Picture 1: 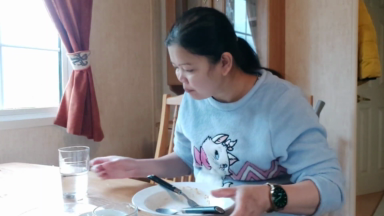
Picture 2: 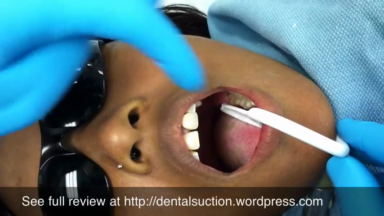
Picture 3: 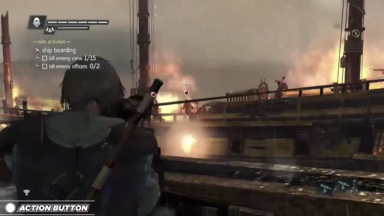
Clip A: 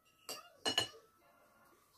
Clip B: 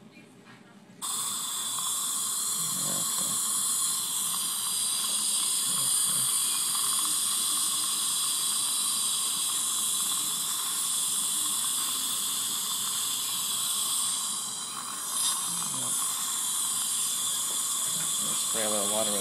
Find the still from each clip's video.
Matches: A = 1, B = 2